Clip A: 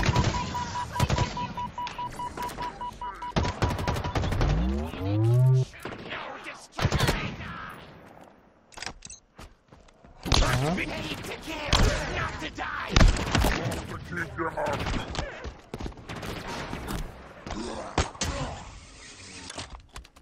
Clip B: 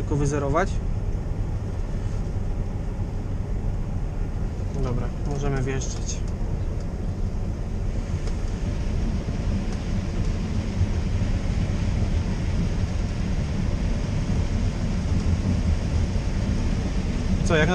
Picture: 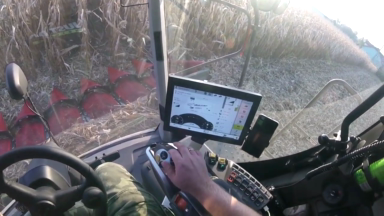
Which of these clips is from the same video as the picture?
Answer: B